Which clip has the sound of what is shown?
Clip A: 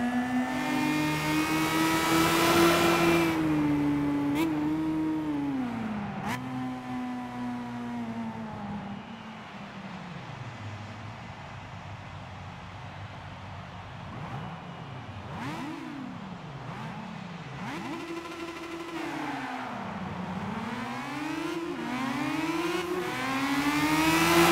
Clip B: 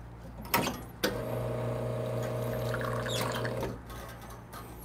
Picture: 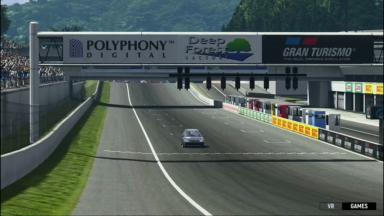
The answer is A